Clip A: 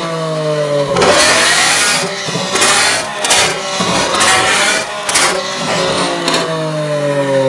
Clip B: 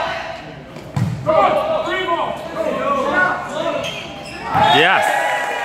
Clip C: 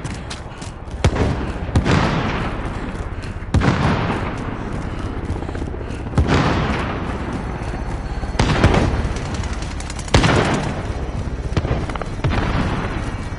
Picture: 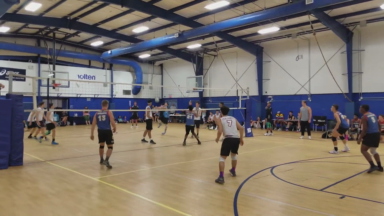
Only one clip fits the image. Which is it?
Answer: B